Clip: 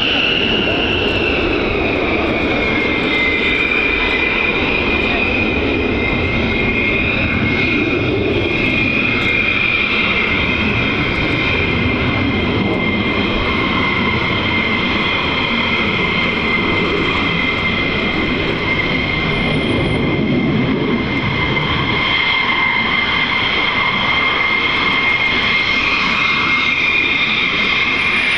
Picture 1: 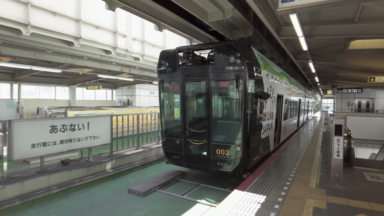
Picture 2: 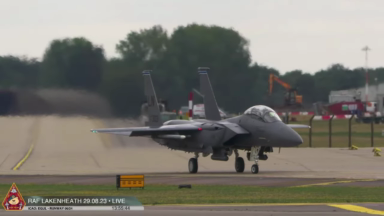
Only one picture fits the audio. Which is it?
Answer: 2